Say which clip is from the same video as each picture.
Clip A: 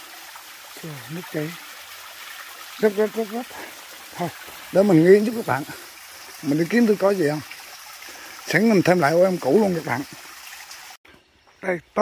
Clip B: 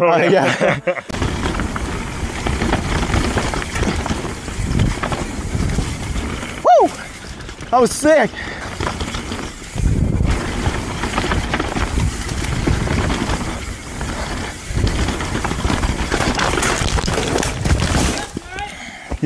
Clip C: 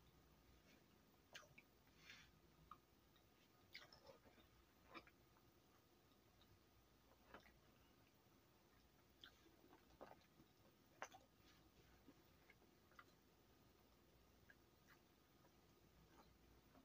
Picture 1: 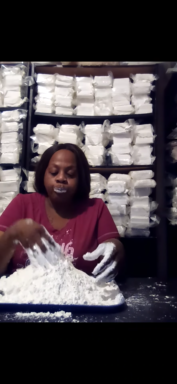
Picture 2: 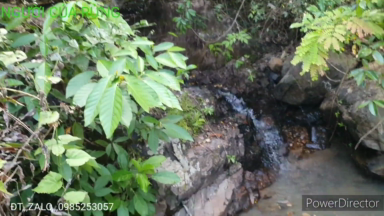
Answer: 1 C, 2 A